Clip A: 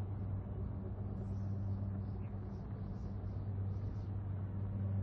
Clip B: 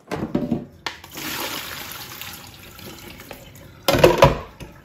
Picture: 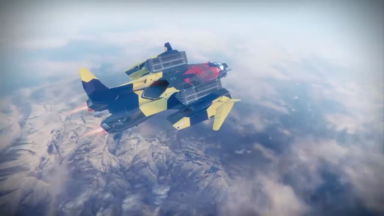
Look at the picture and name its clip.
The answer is A